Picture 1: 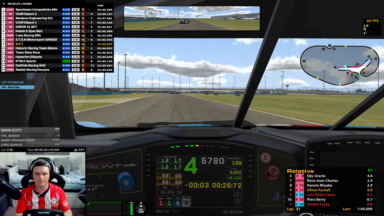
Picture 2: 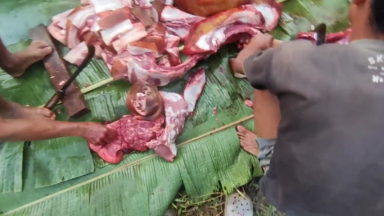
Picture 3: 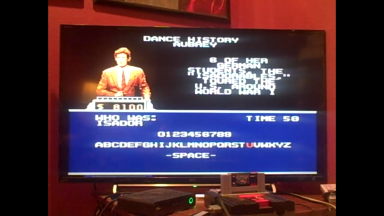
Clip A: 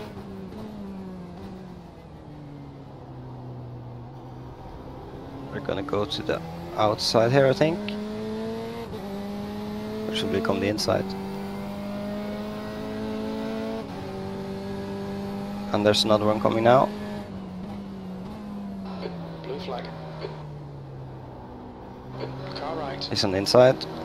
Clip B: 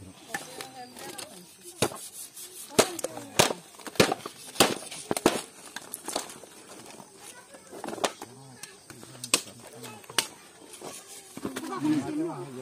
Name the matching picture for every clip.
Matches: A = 1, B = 2